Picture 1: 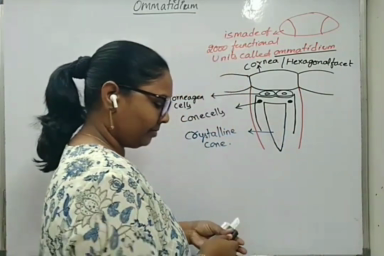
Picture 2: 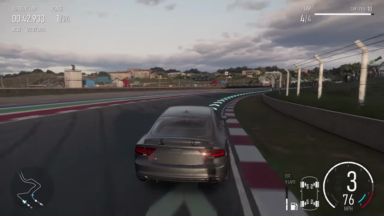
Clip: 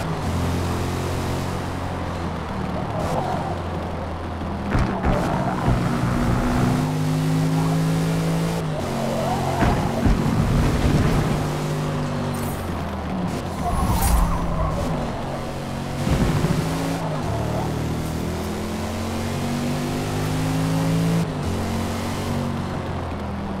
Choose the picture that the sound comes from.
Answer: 2